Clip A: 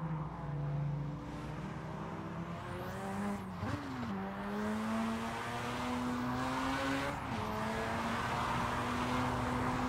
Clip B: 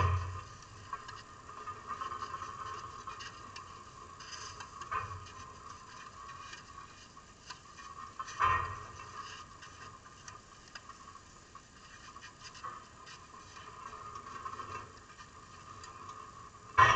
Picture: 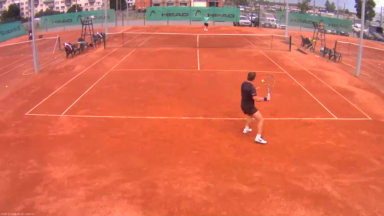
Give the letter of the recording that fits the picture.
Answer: B